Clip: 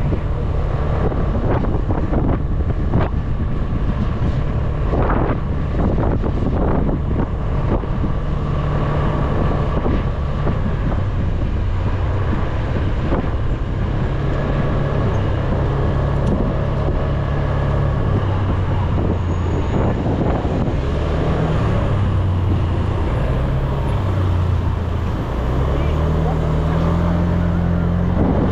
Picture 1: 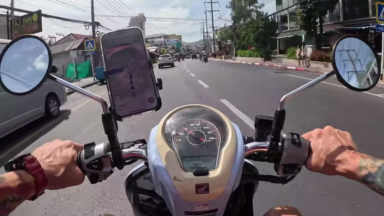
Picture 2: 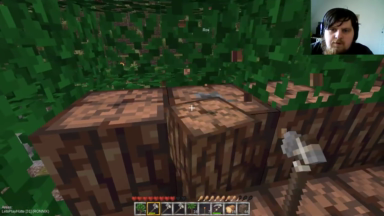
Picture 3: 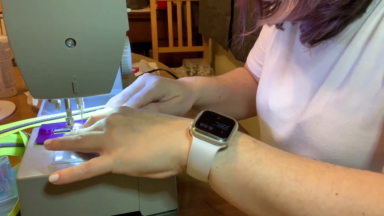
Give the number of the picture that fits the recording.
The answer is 1